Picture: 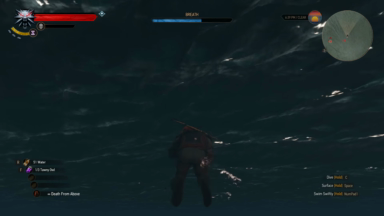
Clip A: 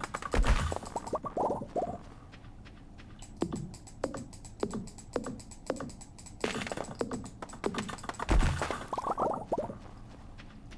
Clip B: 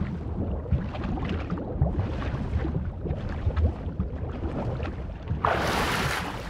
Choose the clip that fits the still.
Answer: B